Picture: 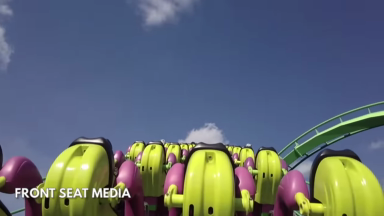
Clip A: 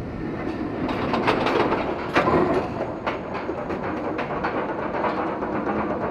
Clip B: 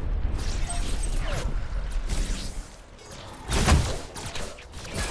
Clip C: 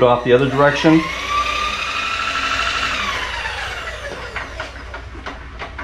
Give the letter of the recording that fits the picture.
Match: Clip A